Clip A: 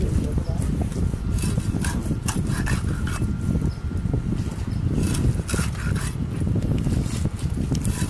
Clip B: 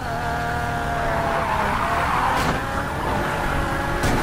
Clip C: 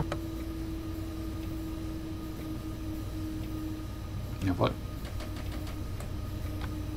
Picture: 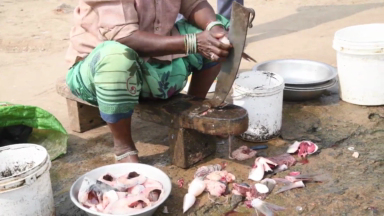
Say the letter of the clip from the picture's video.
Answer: A